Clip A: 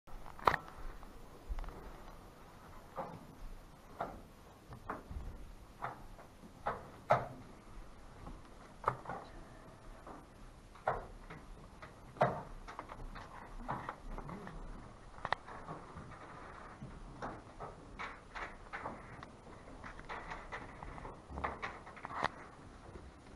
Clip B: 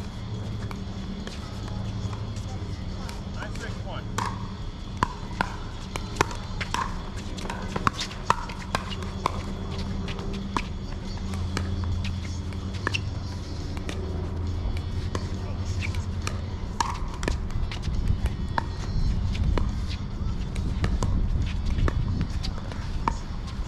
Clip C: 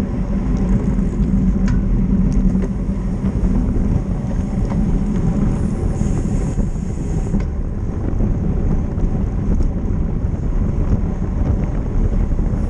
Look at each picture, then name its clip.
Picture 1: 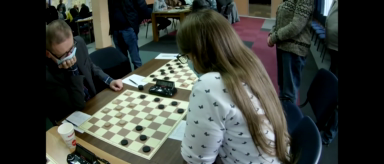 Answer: A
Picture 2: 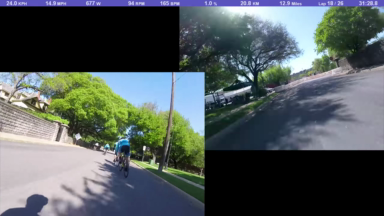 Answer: C